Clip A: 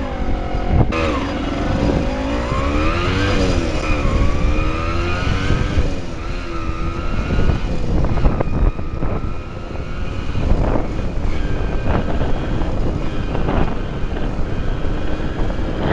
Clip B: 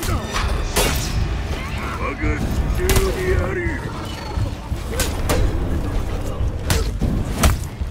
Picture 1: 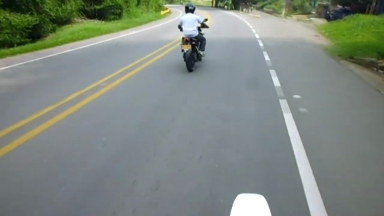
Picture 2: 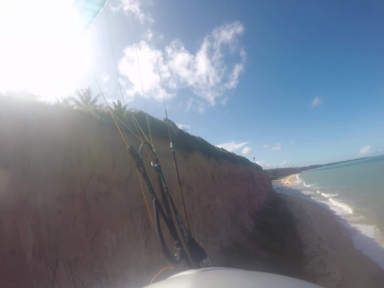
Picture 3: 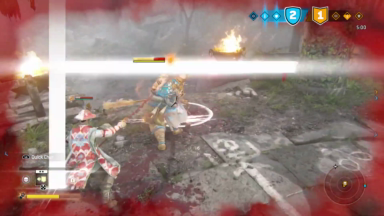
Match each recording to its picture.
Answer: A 1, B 3